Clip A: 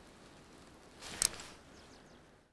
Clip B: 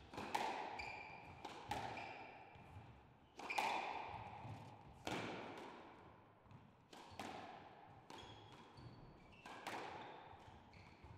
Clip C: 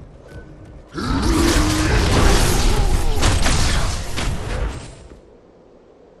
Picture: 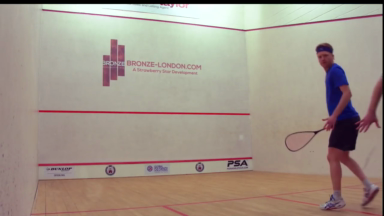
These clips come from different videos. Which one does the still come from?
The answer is B